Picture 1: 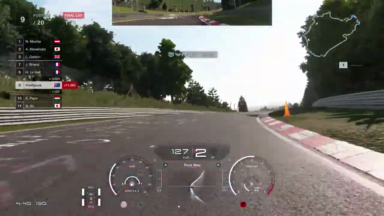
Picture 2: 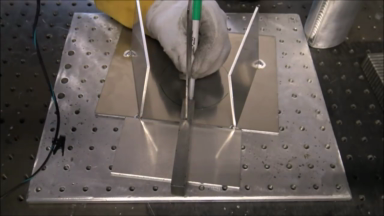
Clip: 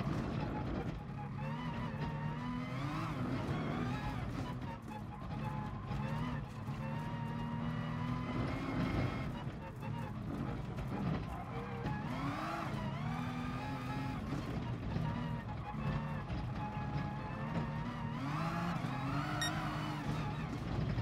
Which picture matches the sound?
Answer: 1